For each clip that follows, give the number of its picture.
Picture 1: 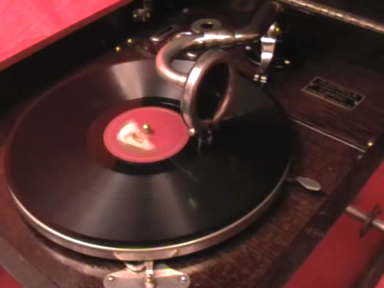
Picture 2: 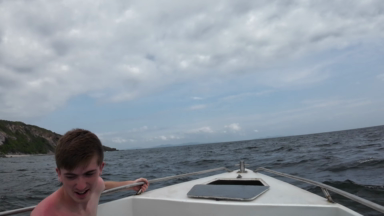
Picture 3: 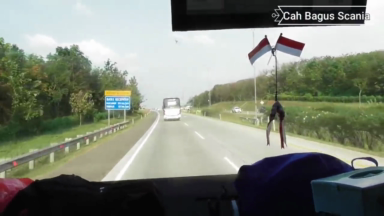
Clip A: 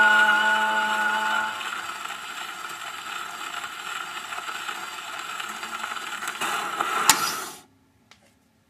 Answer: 1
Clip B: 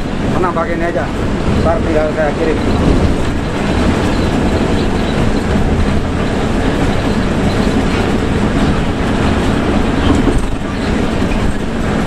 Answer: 3